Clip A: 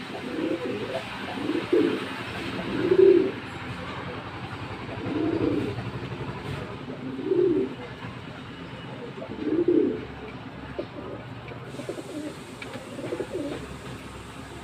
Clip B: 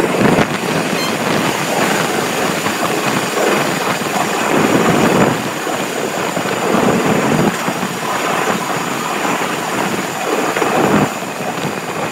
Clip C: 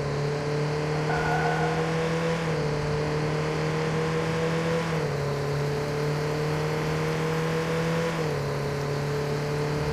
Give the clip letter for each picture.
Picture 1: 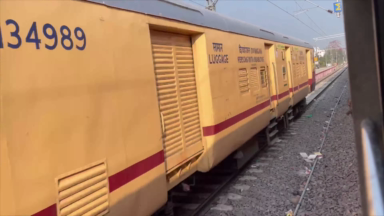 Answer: B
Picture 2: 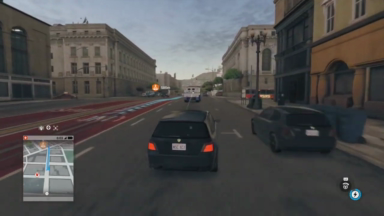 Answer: C